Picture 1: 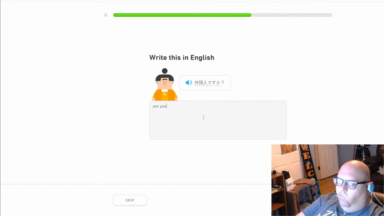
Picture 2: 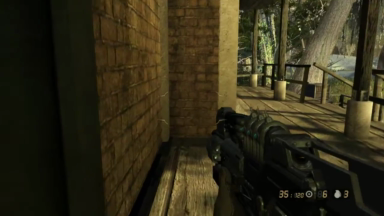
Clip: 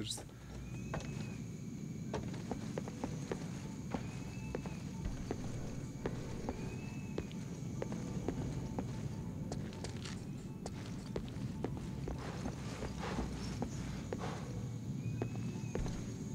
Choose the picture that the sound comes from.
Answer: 2